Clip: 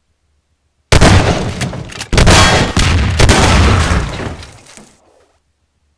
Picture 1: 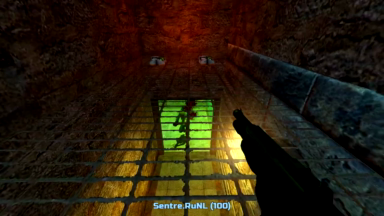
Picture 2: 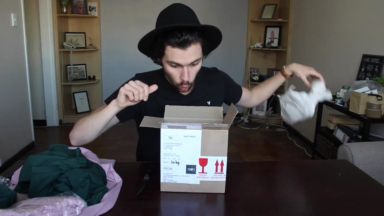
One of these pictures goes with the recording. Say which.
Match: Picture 1